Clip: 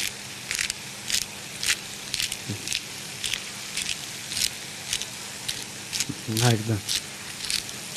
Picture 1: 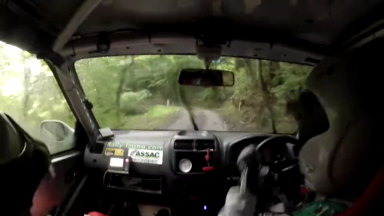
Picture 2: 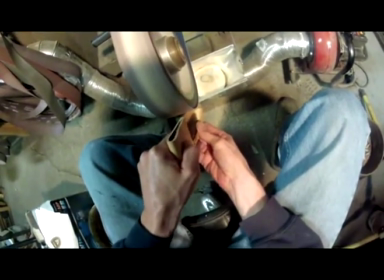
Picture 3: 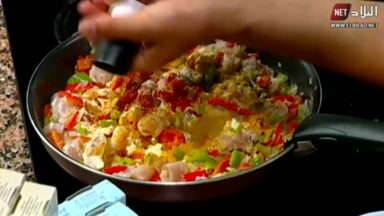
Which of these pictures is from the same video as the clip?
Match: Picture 3